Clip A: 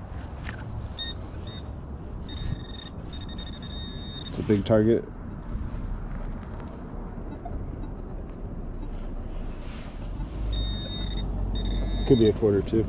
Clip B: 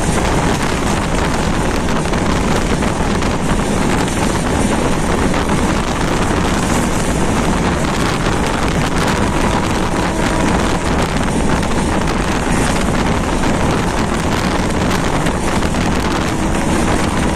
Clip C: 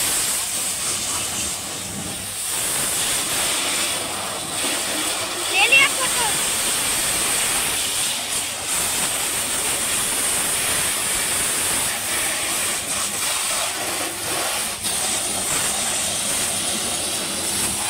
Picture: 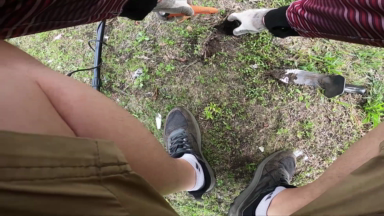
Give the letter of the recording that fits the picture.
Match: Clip A